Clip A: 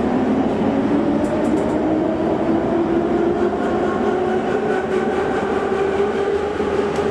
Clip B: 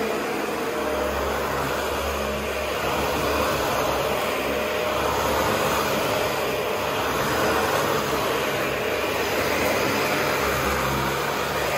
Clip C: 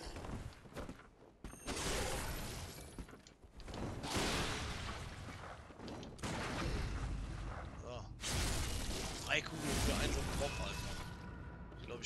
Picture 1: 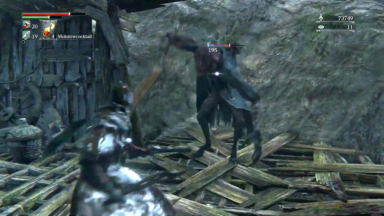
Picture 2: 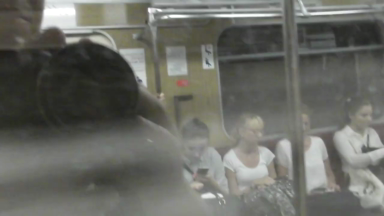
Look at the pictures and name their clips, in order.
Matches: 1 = C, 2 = A